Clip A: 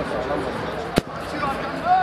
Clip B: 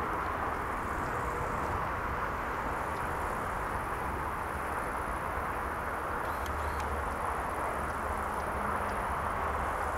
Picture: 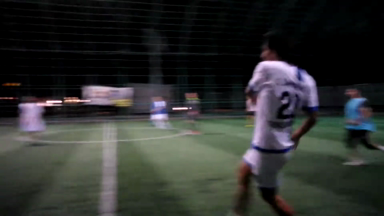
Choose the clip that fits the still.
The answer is A